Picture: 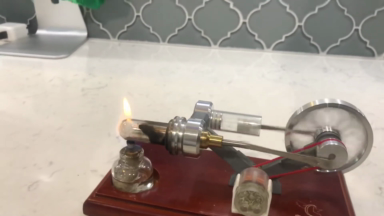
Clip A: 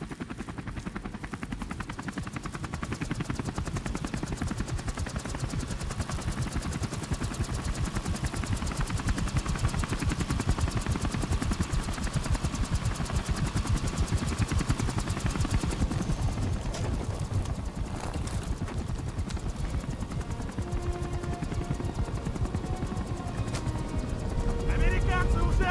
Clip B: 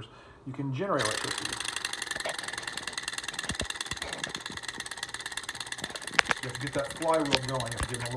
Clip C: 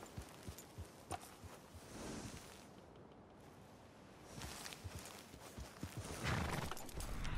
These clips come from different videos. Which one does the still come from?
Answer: B